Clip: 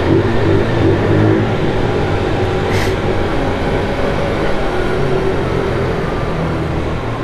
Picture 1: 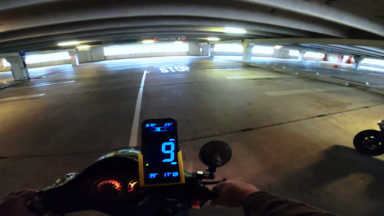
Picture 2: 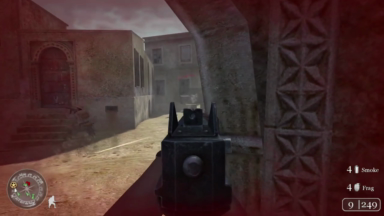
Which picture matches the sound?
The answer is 1